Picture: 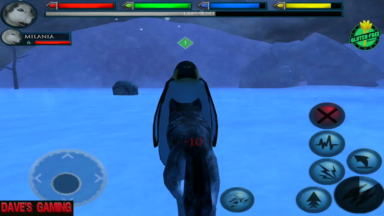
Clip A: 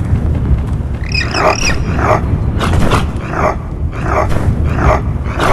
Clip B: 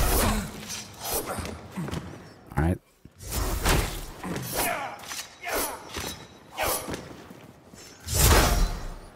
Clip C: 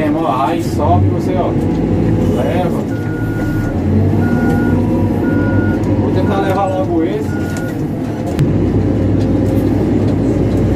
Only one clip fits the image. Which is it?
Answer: A